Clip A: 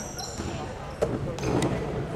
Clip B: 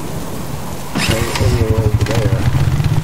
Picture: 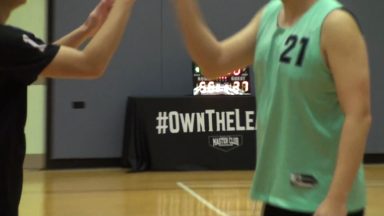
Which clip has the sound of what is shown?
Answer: A